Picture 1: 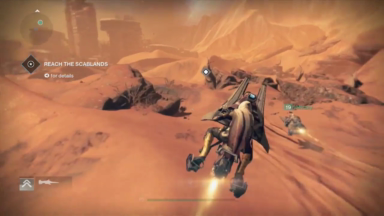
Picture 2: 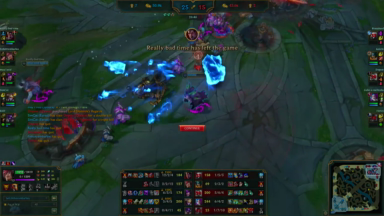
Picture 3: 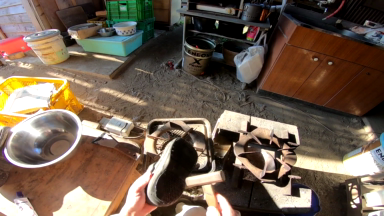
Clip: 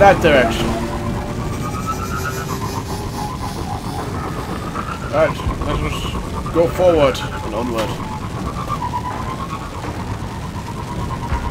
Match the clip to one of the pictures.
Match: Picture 1